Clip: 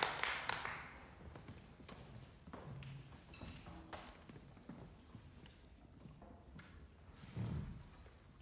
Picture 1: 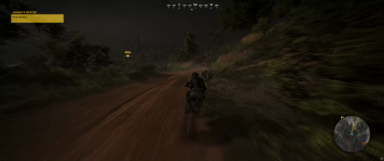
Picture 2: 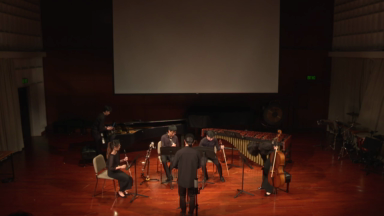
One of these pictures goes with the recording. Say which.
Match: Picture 2